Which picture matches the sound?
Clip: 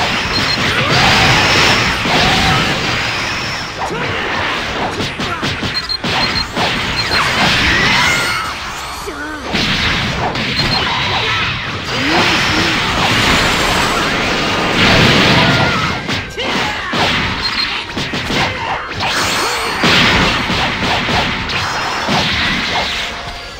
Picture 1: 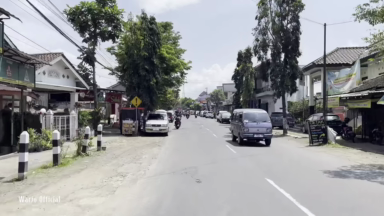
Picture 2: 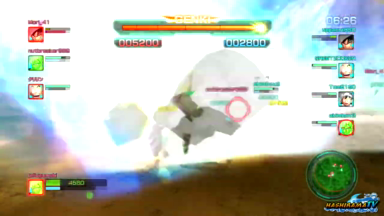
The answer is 2